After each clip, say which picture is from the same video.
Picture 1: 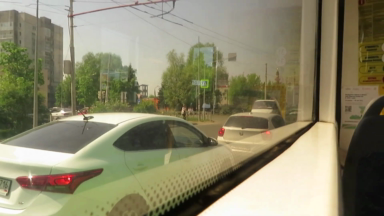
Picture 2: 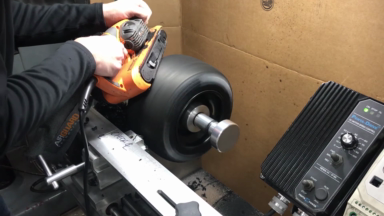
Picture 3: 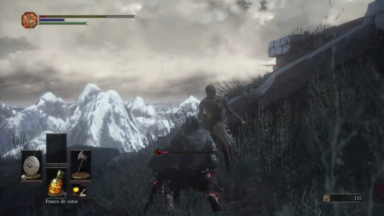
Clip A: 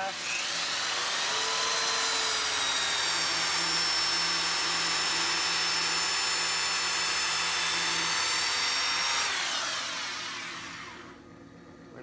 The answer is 2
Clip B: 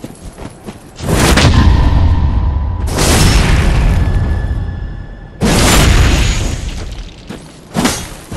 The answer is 3